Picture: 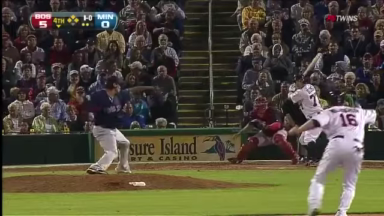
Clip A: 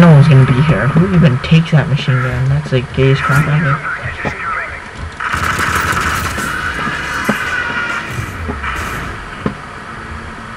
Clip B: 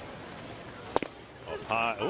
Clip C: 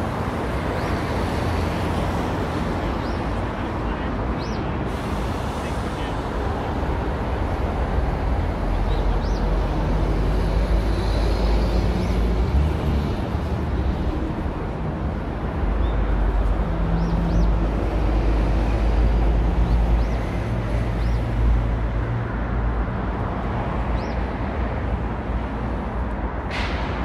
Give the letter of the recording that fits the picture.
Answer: B